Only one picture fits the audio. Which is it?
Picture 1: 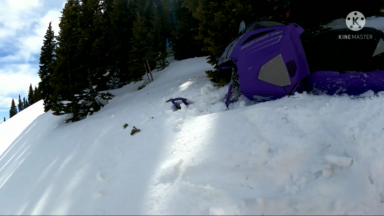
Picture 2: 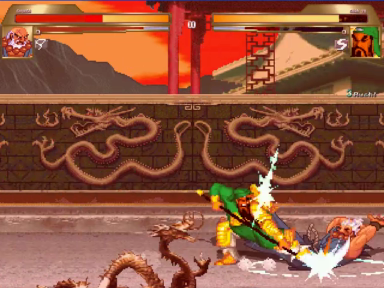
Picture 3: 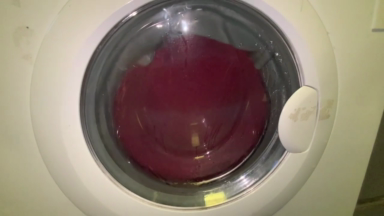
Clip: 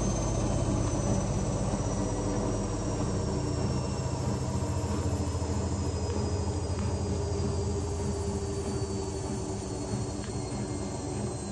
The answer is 3